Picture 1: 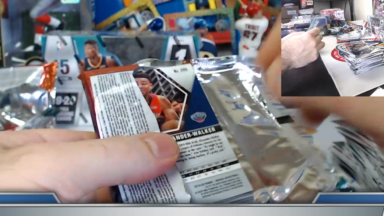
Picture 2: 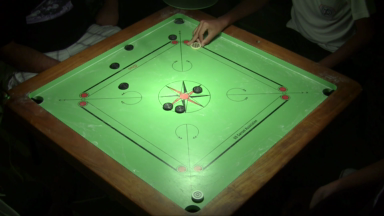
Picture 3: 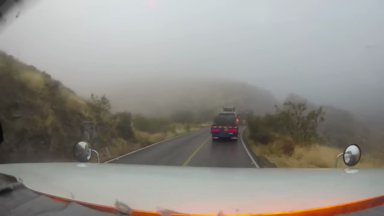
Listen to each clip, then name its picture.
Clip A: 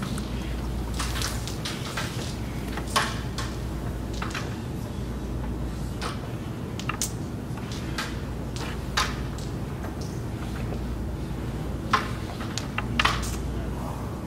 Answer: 2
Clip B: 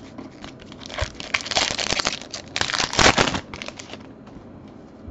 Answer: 1